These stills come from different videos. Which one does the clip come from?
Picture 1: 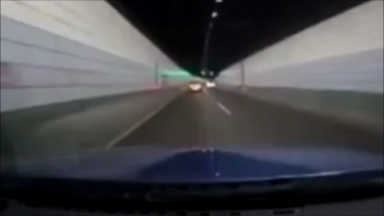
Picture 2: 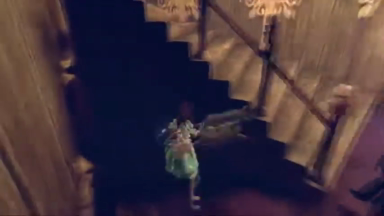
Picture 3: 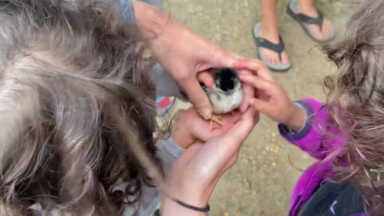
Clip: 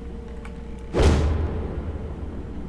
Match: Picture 2